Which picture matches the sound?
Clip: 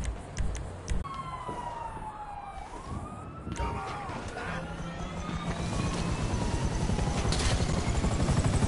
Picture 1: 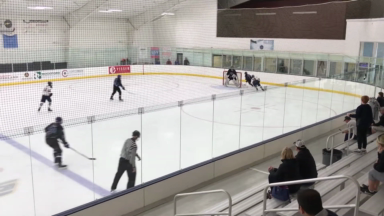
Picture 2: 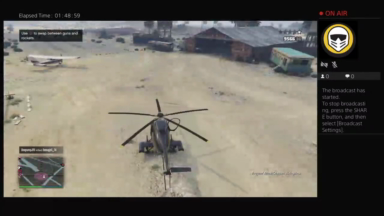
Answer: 2